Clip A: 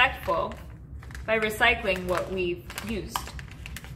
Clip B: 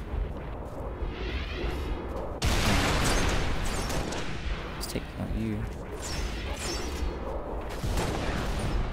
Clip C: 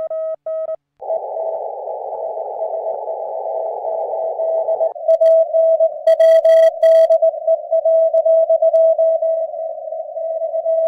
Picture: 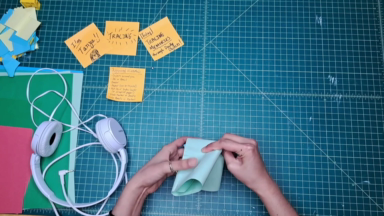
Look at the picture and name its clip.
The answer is A